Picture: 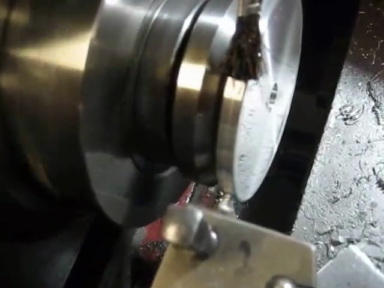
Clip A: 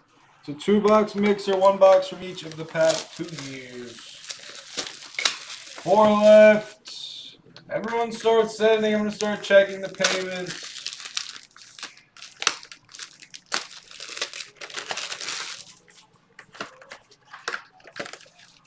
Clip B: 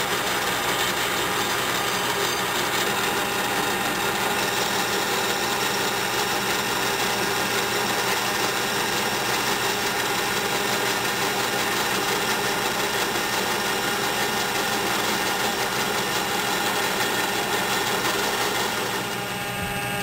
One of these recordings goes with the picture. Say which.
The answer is B